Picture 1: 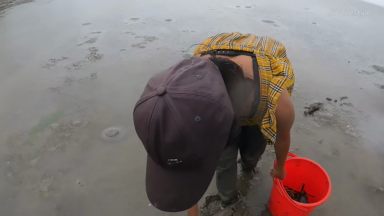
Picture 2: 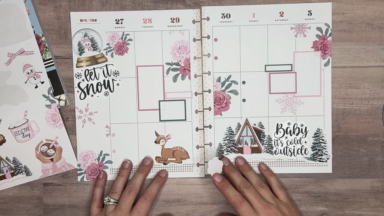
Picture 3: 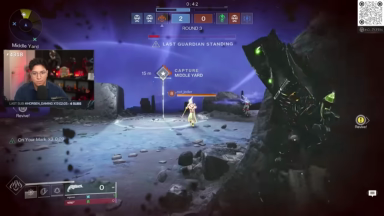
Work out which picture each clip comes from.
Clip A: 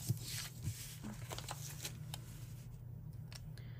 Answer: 2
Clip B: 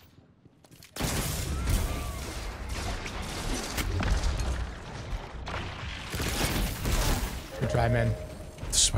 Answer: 3